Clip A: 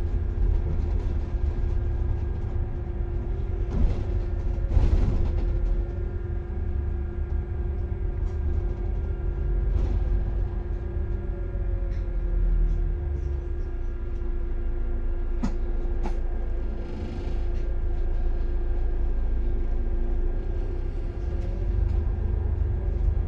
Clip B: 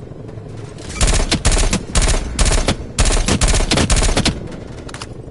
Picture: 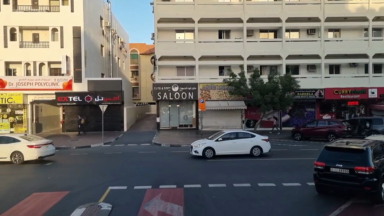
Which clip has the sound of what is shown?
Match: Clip A